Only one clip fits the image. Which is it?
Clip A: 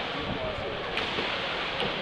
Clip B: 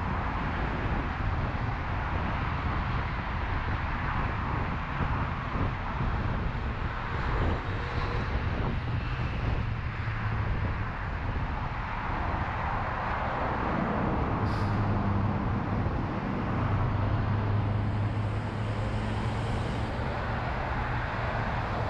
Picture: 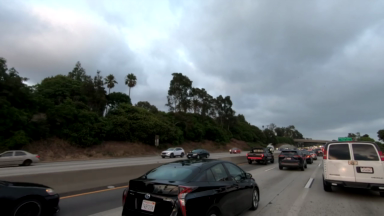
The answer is B